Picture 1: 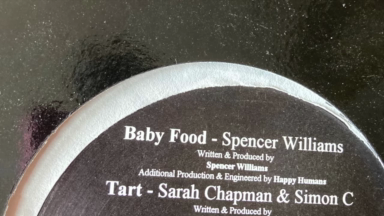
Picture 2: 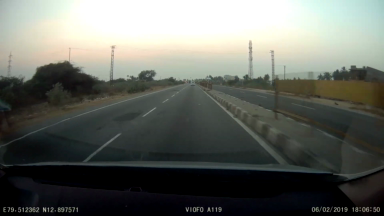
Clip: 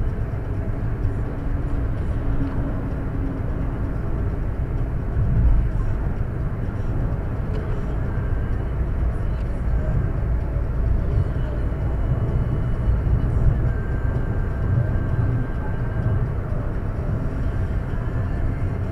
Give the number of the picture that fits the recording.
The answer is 2